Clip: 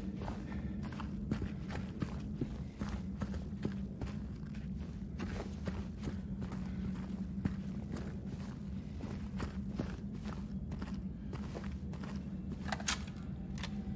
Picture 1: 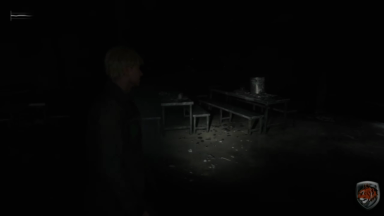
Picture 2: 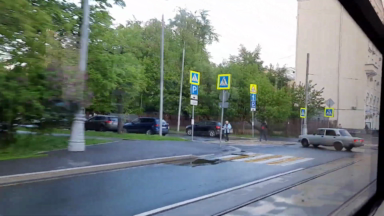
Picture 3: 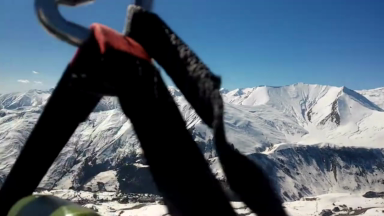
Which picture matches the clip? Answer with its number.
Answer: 1